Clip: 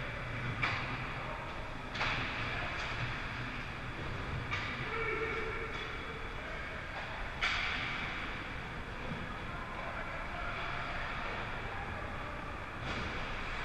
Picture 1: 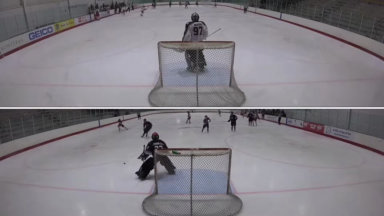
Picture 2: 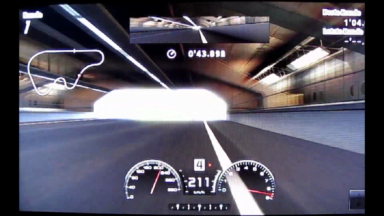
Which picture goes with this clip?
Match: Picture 1